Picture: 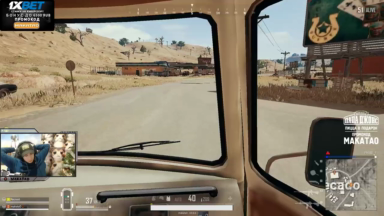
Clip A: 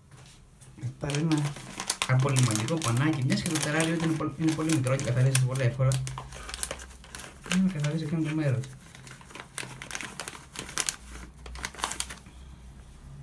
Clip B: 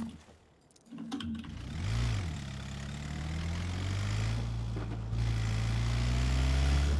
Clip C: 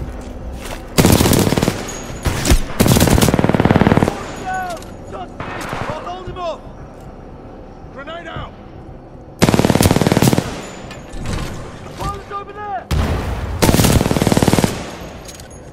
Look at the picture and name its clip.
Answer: B